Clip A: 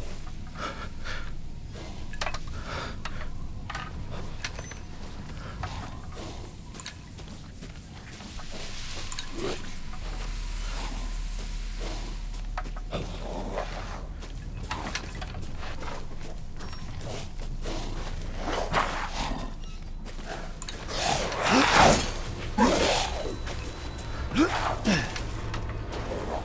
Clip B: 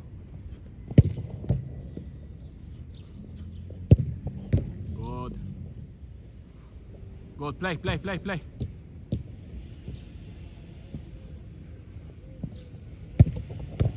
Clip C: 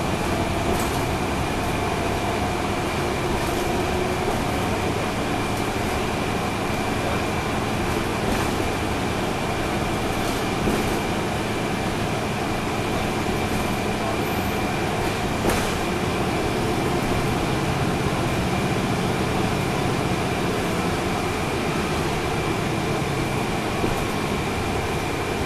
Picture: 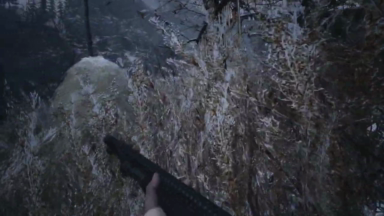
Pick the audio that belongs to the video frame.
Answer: A